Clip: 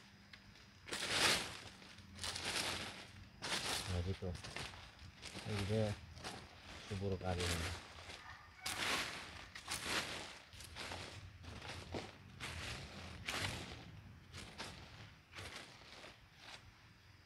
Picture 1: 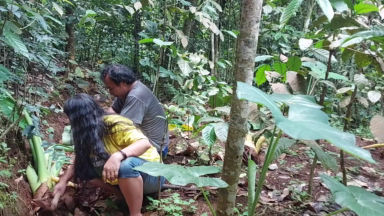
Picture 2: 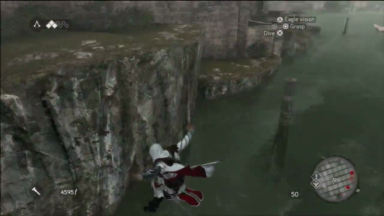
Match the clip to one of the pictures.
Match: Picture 1